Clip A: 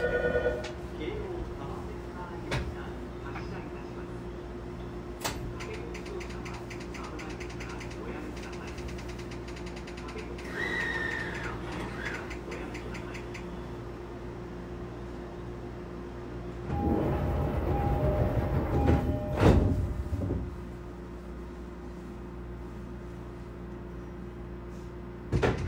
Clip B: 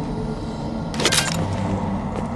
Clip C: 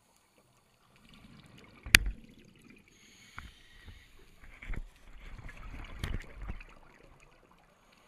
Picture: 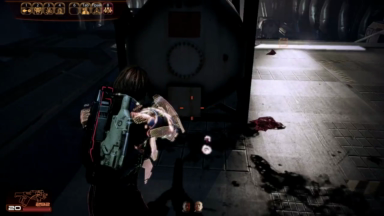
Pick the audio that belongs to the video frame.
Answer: B